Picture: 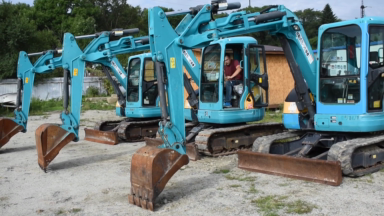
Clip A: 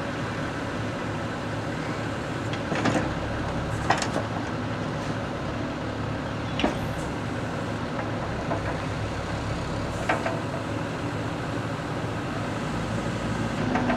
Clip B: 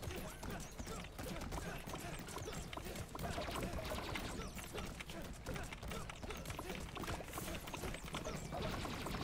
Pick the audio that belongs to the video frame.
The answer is A